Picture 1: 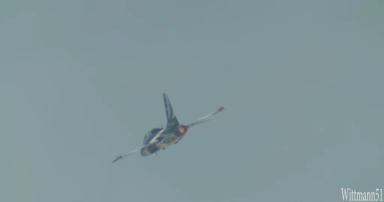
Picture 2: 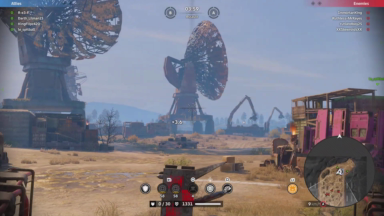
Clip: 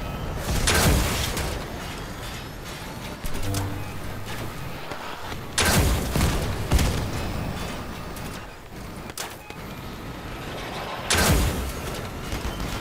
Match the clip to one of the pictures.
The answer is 2